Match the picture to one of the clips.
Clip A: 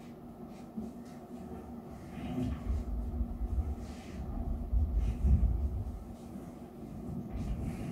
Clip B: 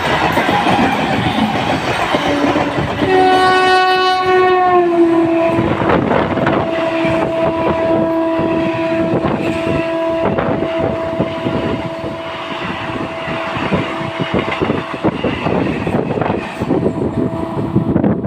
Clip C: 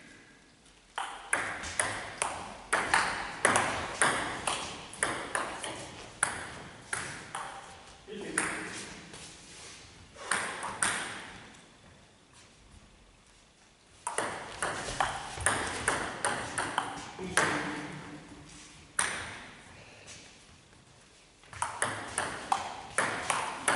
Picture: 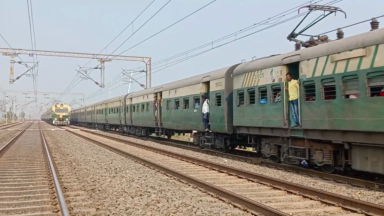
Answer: B